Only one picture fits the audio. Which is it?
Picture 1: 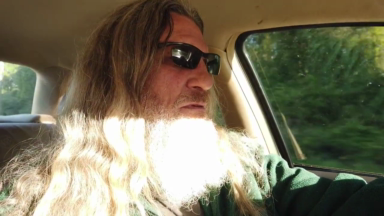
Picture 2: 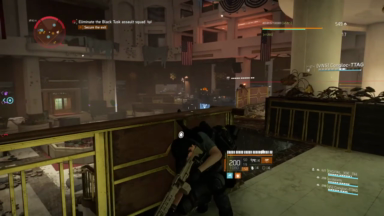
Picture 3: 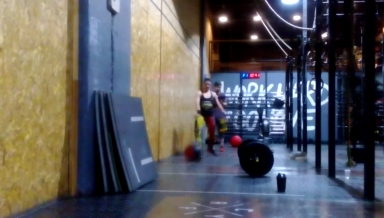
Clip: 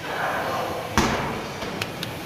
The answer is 3